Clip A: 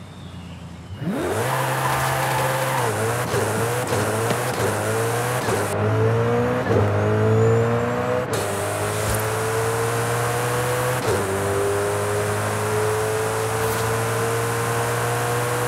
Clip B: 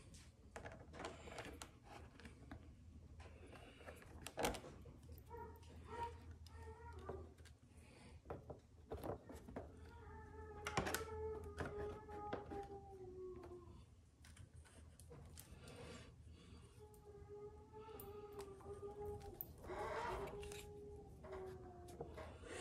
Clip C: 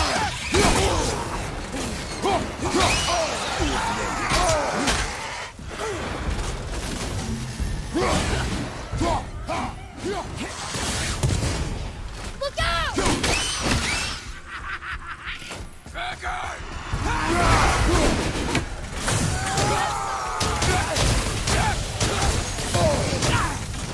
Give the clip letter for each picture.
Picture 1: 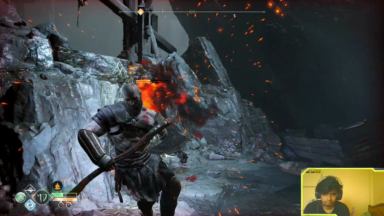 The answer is C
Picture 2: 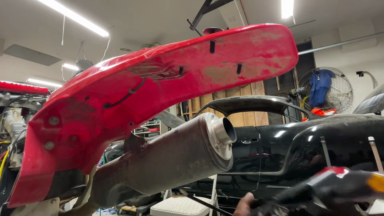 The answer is B